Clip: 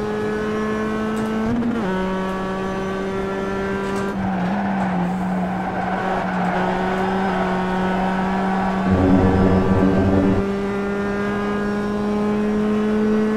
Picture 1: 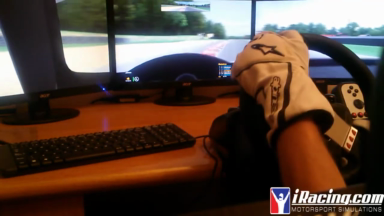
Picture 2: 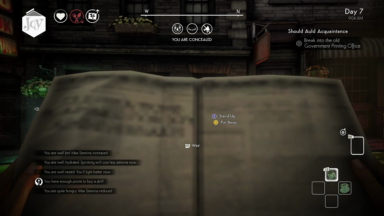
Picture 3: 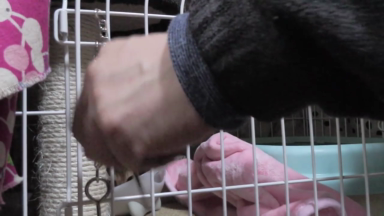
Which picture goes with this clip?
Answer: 1